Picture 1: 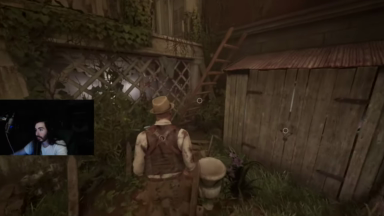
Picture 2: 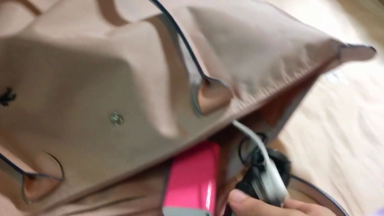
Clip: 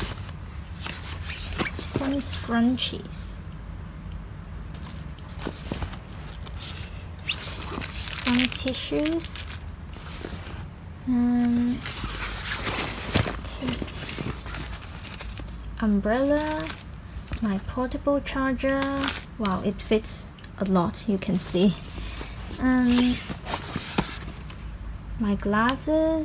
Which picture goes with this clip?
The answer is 2